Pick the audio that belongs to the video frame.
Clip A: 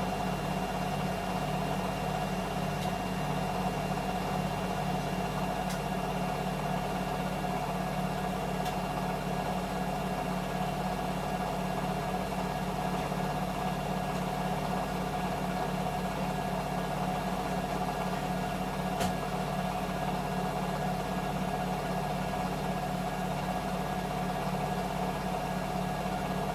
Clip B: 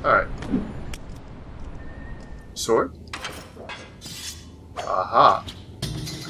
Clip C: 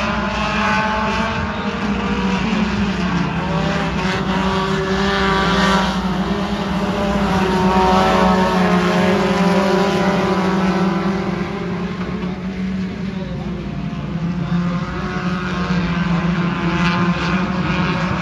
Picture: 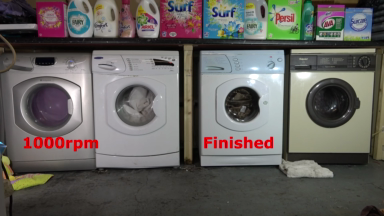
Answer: A